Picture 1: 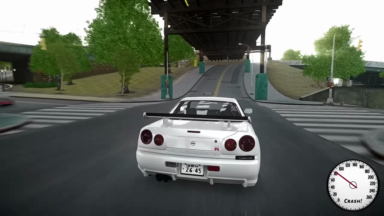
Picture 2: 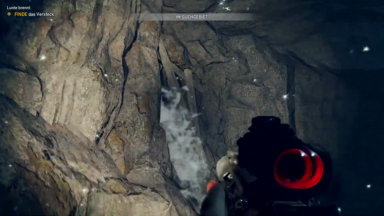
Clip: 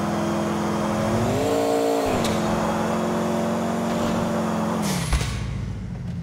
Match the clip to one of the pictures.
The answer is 1